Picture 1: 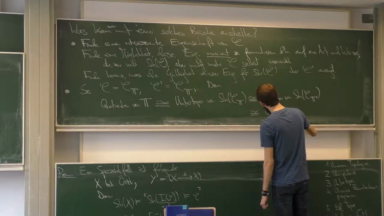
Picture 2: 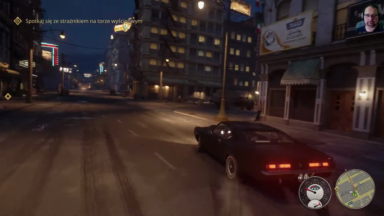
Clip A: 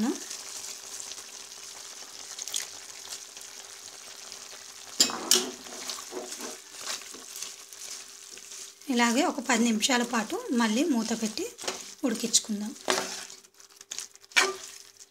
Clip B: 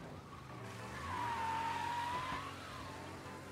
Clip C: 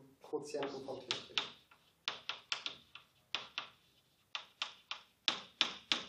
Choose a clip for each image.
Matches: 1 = C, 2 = B